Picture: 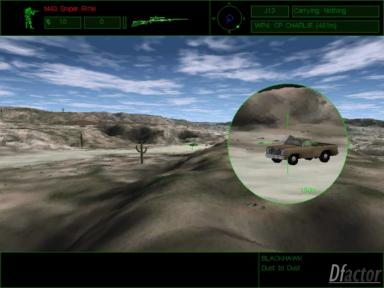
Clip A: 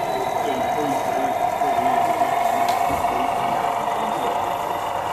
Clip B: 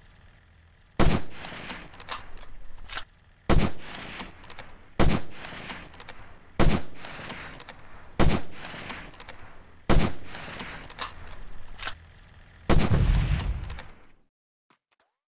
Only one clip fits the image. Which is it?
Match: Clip B